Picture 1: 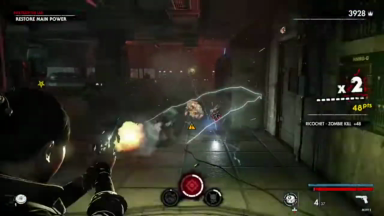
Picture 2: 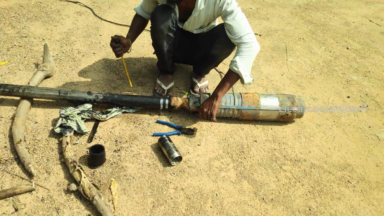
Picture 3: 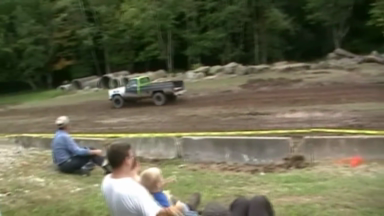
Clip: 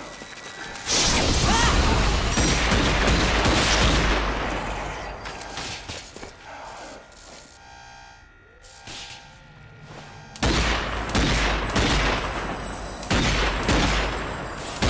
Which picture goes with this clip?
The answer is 1